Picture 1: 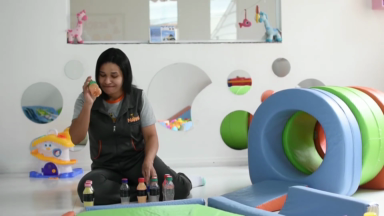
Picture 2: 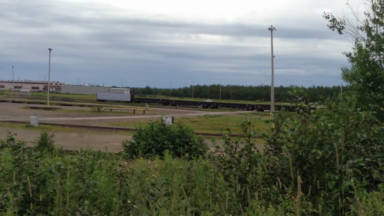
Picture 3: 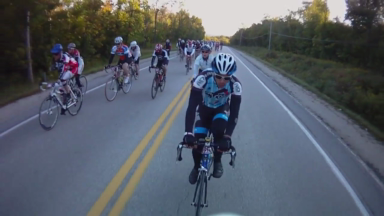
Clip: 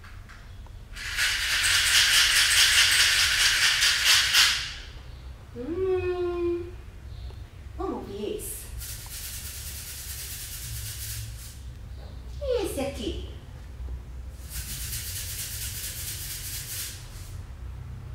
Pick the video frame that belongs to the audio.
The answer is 1